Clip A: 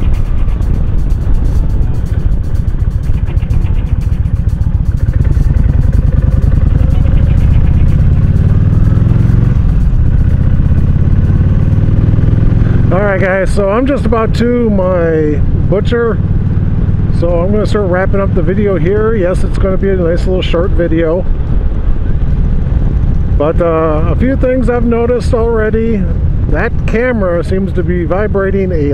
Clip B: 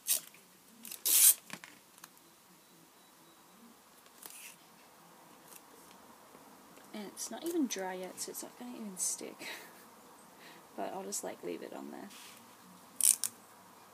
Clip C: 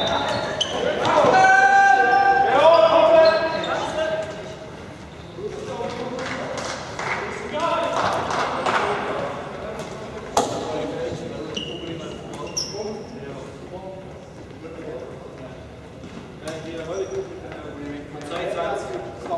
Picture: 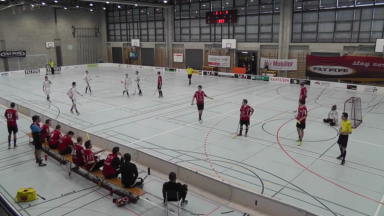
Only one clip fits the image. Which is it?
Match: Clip C